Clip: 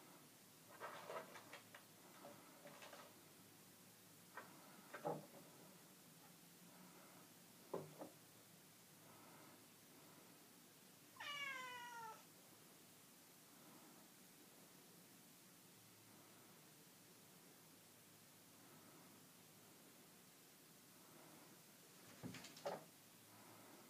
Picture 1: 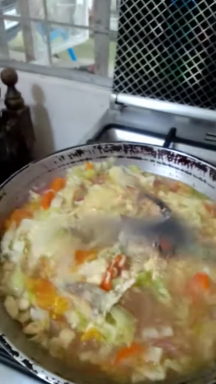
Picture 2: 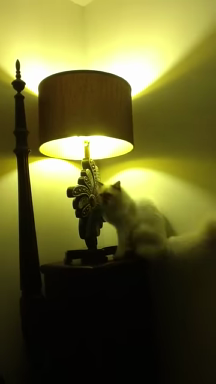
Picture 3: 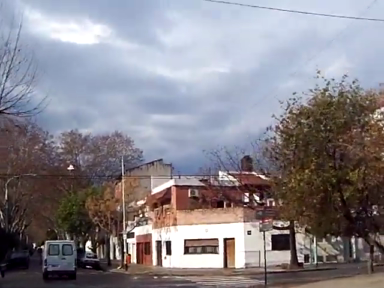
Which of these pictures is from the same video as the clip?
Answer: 2